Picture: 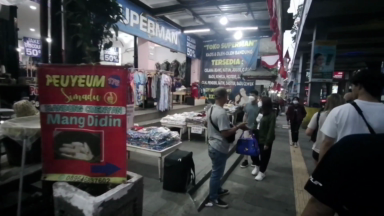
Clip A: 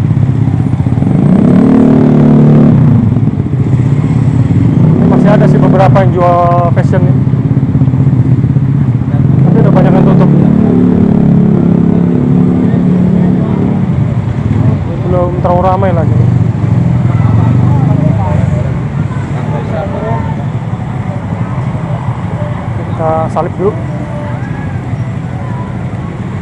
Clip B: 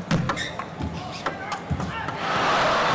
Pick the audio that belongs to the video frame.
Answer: A